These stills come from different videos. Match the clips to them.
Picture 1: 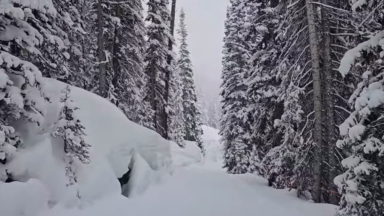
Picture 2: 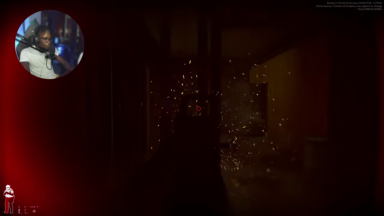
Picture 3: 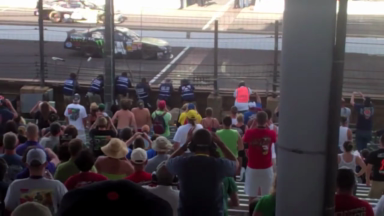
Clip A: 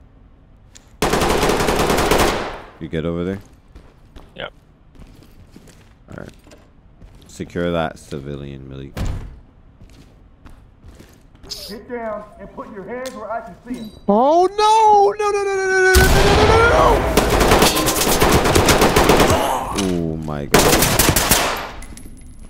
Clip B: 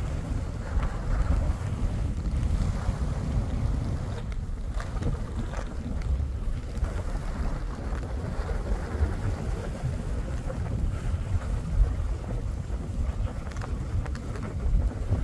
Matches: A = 2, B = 1